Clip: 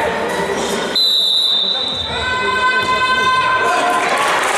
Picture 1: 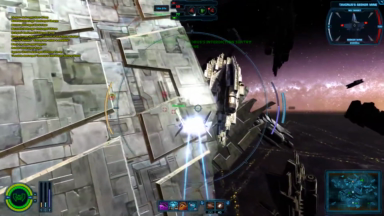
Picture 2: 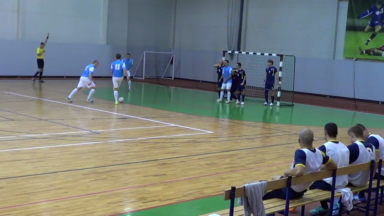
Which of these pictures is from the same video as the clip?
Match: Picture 2